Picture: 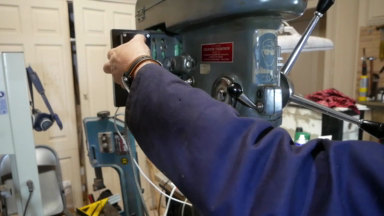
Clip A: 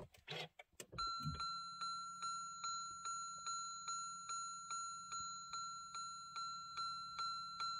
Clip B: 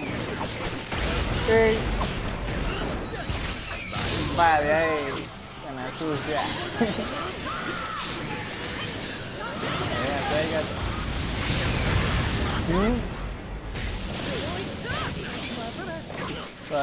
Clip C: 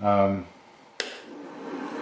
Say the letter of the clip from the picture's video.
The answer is C